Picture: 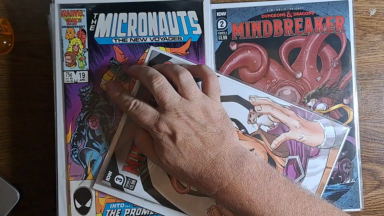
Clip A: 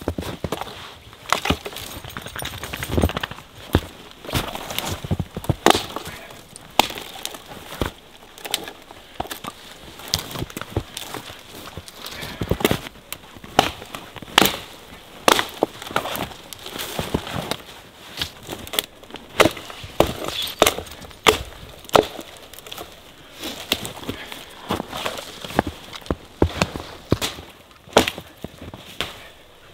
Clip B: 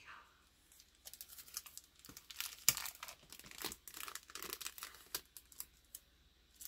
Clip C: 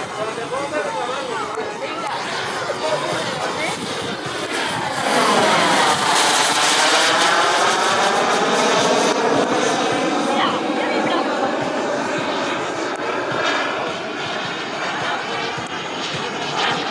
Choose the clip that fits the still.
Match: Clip B